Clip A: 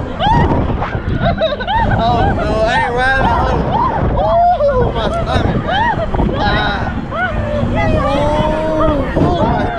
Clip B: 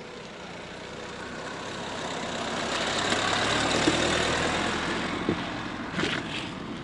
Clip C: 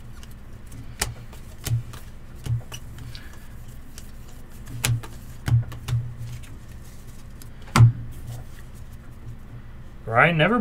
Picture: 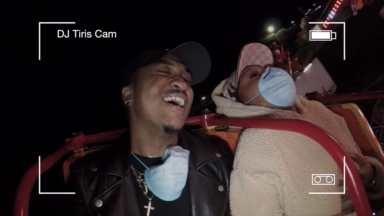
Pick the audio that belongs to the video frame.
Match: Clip A